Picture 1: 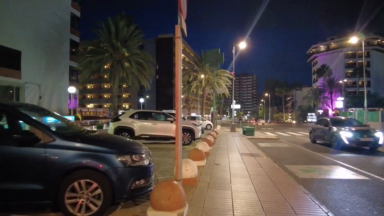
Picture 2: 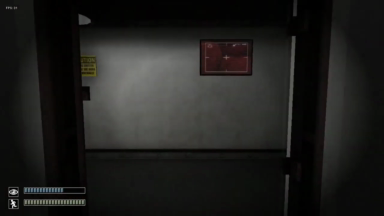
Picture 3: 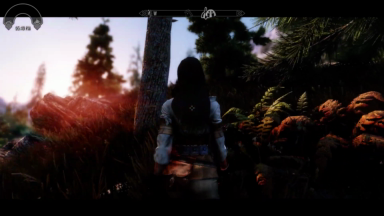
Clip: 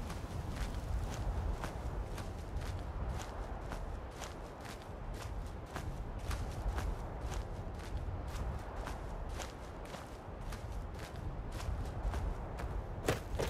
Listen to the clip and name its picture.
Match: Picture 3